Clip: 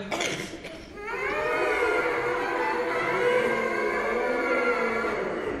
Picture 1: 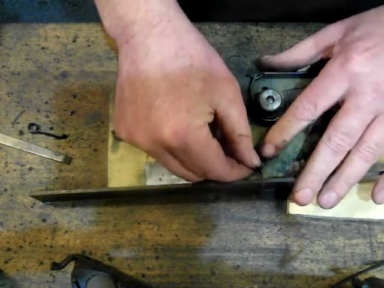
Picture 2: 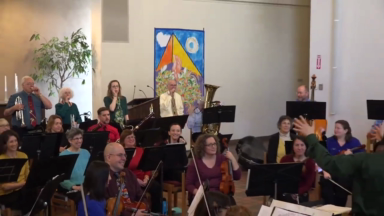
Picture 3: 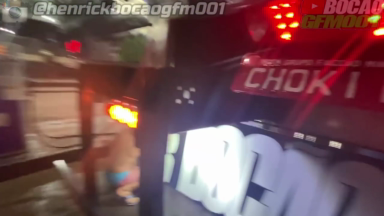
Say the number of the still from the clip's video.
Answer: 2